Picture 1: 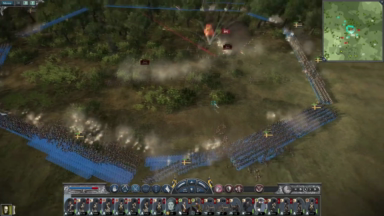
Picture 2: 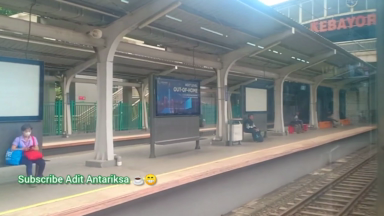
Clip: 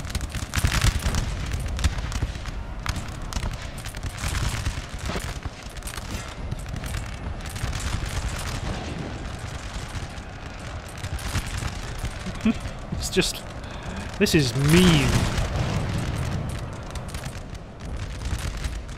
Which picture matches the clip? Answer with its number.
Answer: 1